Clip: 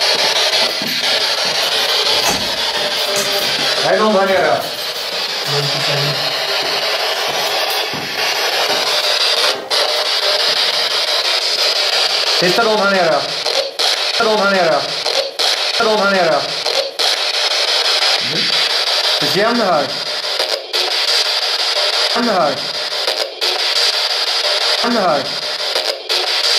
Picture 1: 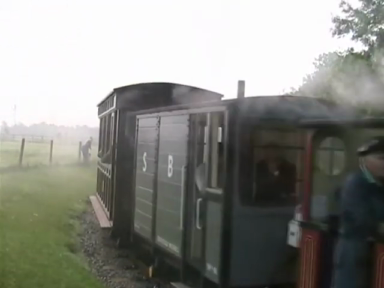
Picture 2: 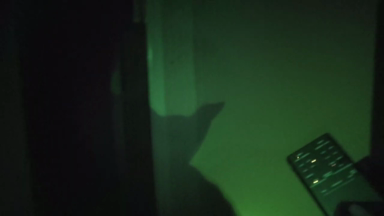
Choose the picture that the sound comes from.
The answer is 2